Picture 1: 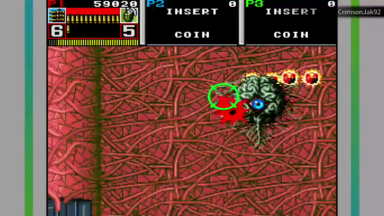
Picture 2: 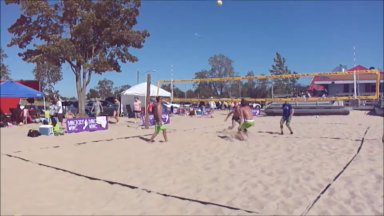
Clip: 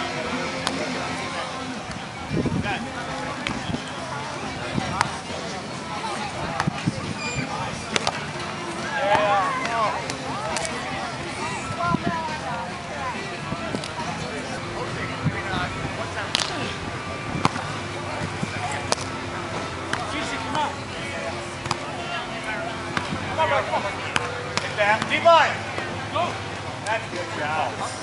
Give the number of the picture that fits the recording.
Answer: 2